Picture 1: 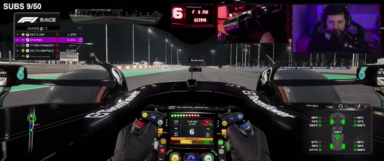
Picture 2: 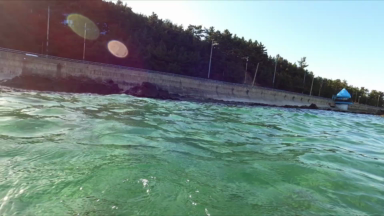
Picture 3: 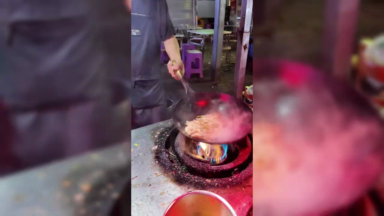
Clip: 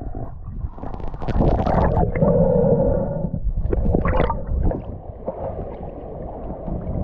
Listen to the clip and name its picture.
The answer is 2